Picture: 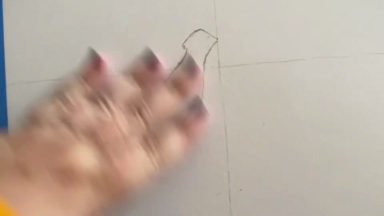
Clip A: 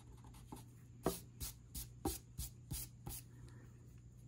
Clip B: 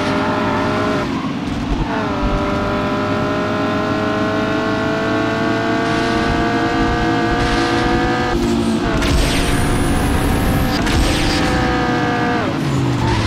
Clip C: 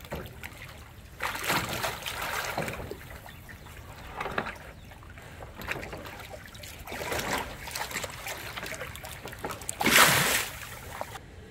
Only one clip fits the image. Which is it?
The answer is A